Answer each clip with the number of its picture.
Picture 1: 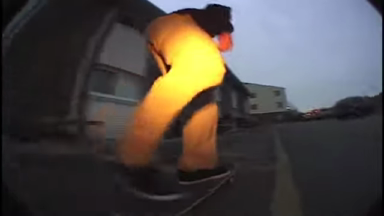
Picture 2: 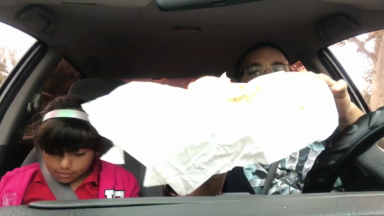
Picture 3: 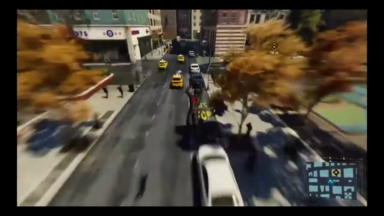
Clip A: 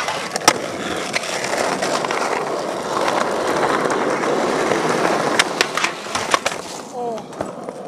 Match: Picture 1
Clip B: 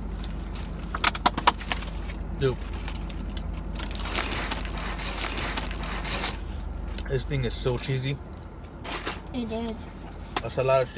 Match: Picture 2